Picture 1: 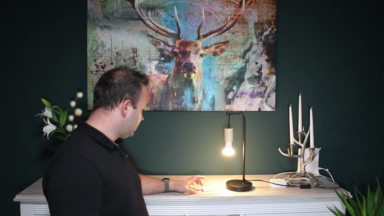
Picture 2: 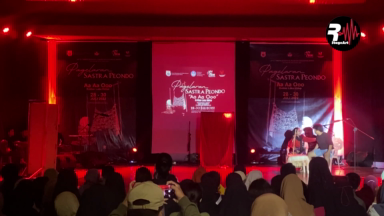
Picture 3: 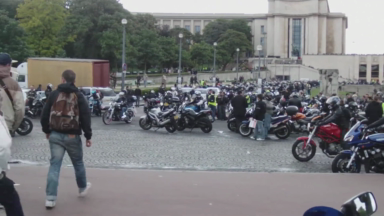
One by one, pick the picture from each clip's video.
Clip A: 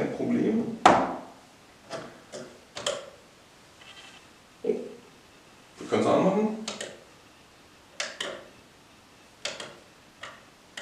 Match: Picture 1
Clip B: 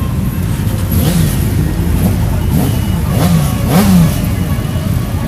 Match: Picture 3